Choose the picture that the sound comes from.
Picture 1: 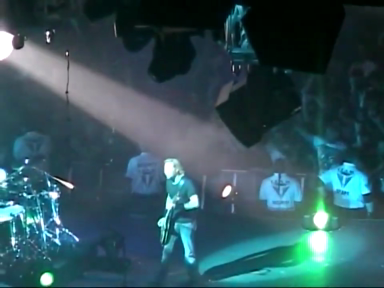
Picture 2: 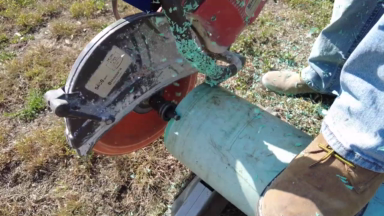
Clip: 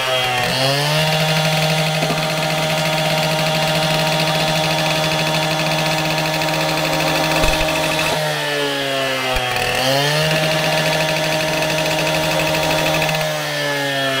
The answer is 2